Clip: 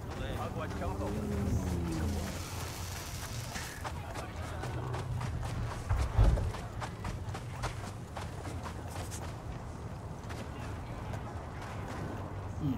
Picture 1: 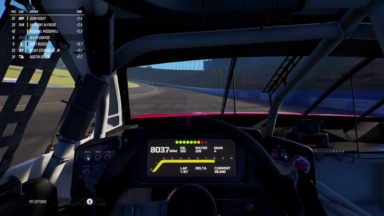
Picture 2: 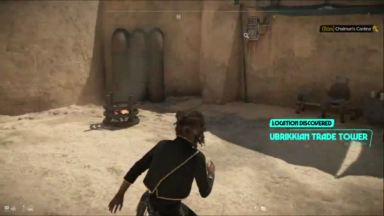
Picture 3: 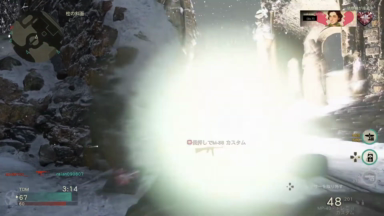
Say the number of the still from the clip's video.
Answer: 2